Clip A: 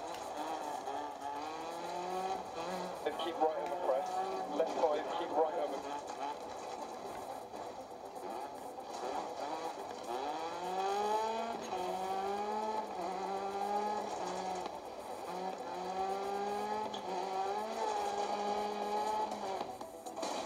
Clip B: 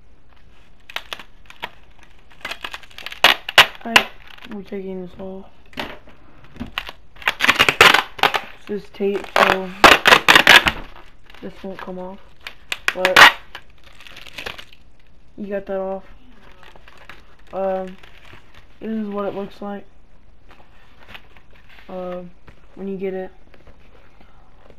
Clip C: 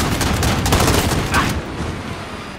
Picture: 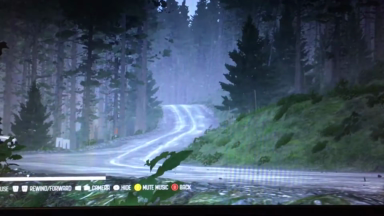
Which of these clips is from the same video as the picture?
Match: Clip A